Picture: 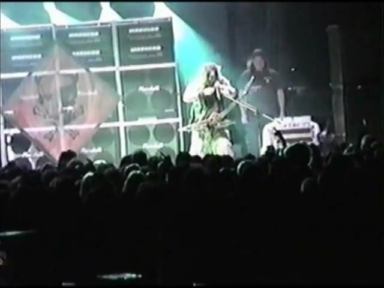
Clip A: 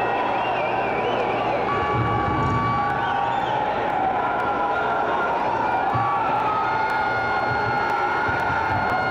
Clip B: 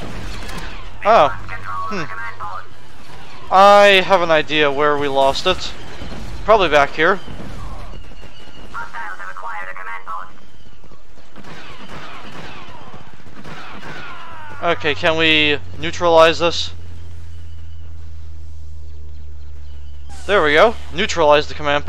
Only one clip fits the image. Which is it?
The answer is A